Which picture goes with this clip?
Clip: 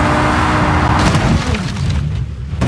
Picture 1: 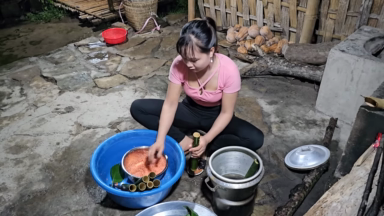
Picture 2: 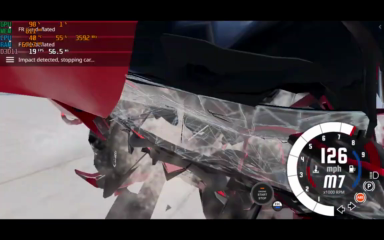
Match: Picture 2